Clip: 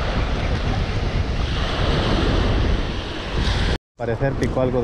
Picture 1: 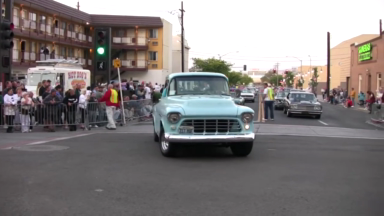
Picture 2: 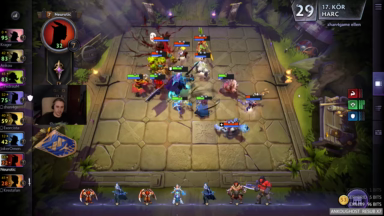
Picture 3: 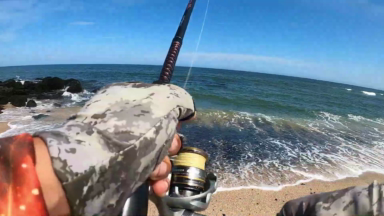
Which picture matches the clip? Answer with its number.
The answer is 3